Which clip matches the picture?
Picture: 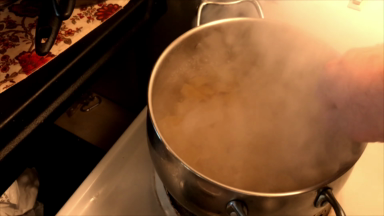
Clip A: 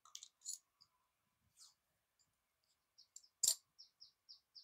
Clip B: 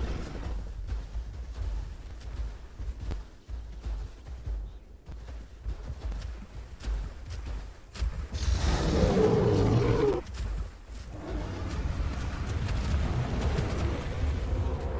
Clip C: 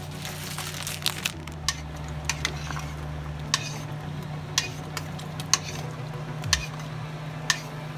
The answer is C